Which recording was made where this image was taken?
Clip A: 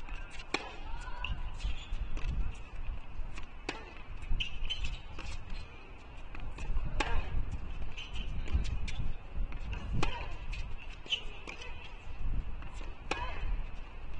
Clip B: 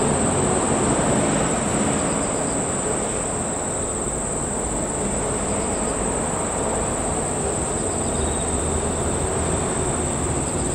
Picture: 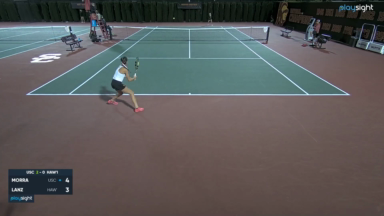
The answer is A